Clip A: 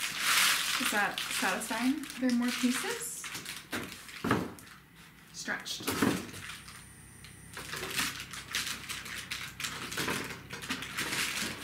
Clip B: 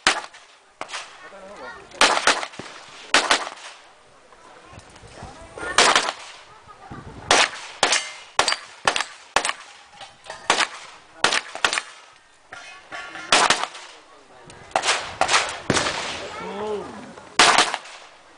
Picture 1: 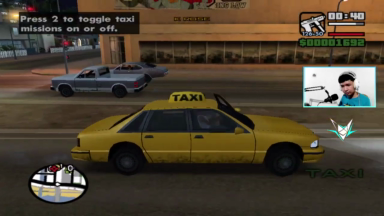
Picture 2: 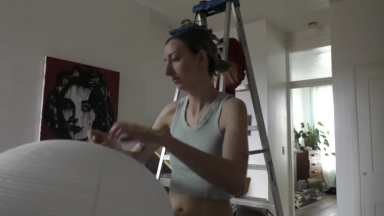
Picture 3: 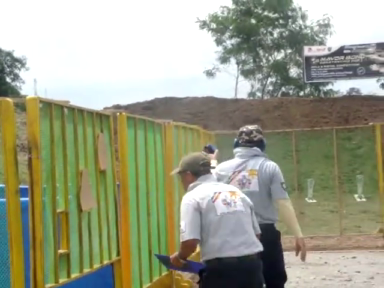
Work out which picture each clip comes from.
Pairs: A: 2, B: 3